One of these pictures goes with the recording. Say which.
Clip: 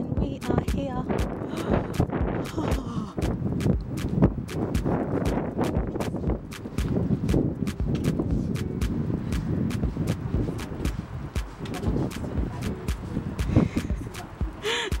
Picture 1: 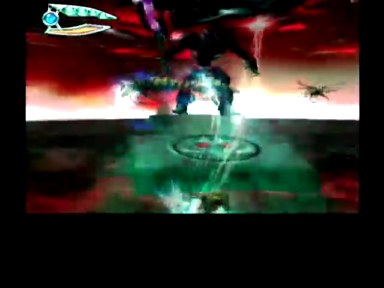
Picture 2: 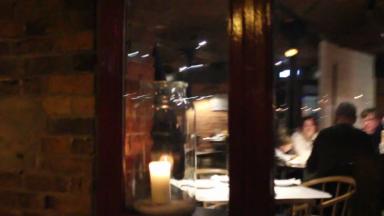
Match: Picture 2